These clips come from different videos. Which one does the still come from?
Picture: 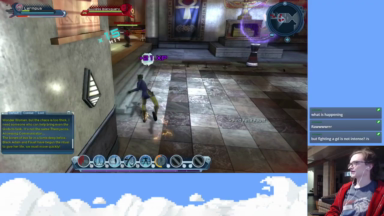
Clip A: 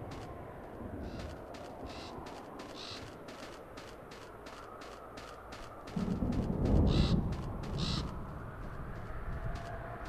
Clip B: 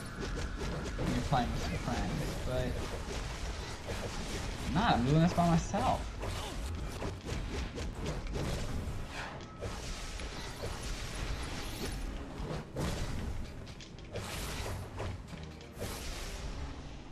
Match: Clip B